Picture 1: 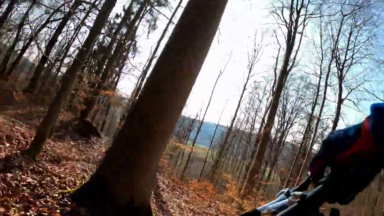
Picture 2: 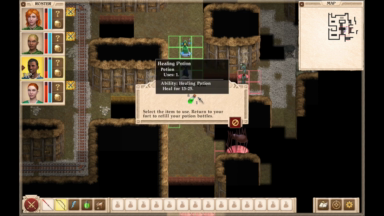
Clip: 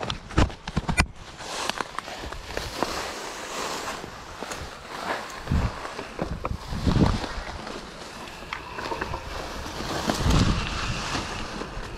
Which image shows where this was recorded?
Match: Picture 1